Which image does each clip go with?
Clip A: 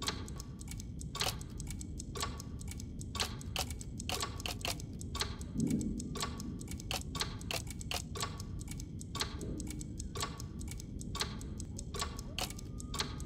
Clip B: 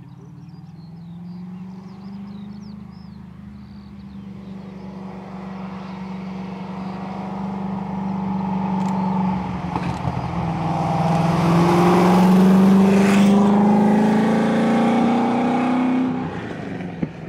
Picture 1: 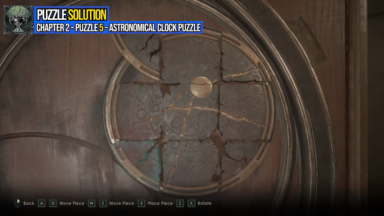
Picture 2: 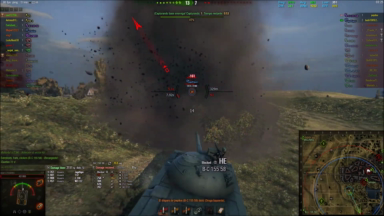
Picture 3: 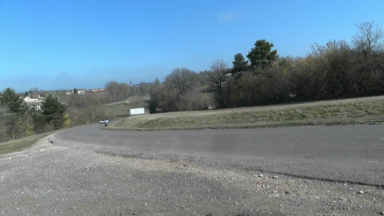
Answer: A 1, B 3